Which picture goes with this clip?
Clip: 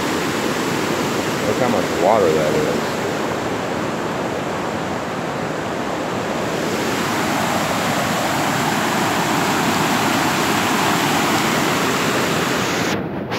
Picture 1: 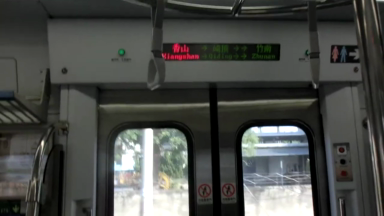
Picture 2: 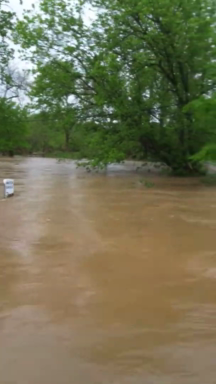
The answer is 2